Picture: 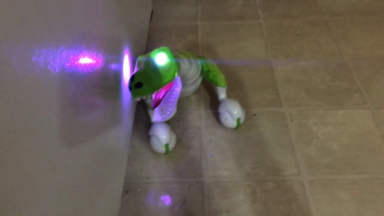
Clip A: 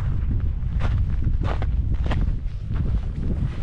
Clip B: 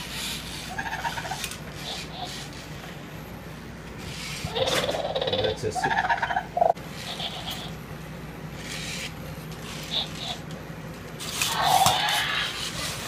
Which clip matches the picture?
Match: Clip B